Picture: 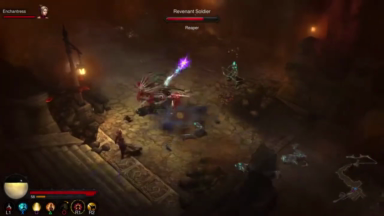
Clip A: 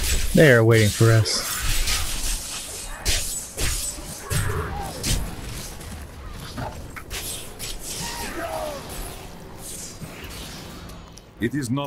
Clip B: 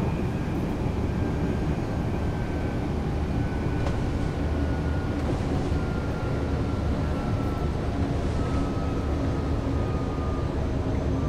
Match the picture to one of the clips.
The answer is A